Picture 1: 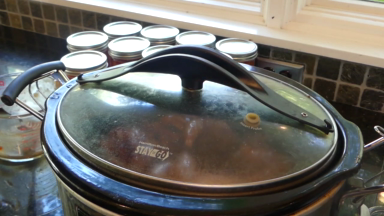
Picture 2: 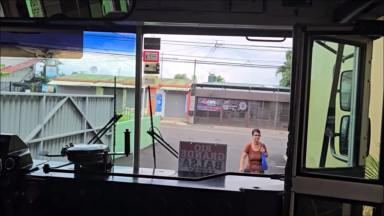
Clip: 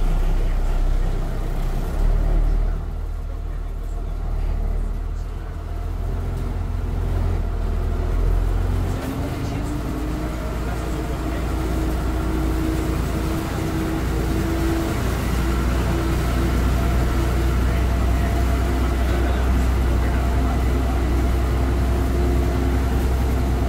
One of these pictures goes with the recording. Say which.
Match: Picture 2